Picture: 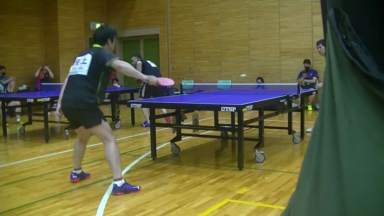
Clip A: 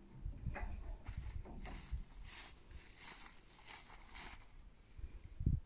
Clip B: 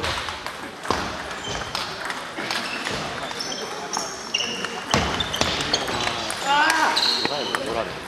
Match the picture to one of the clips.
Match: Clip B